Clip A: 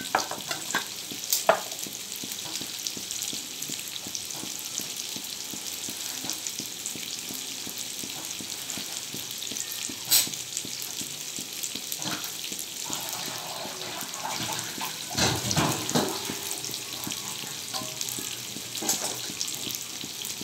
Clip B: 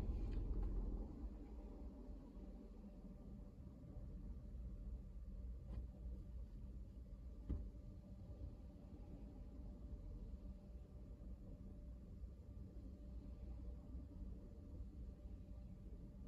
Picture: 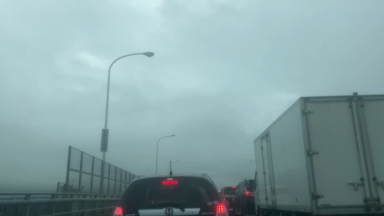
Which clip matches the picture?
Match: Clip B